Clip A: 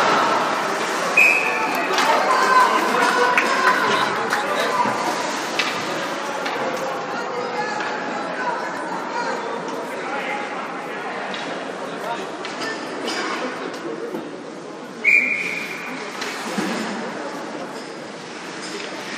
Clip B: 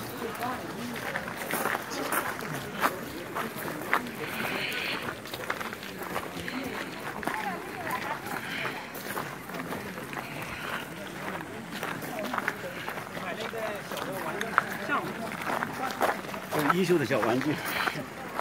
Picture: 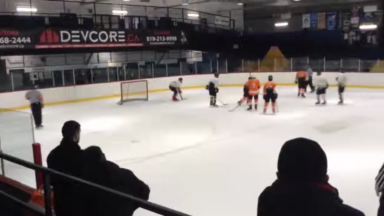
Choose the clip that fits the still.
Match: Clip A